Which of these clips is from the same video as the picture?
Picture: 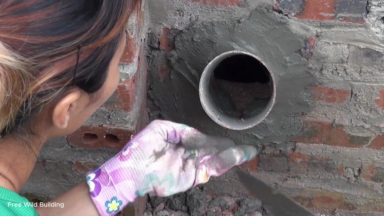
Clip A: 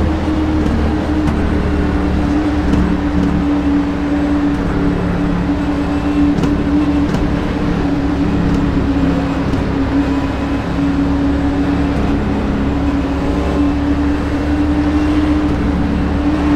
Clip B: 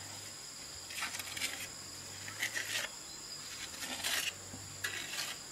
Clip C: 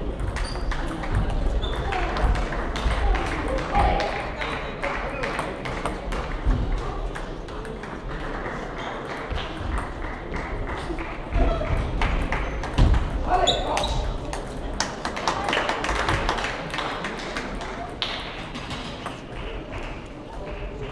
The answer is B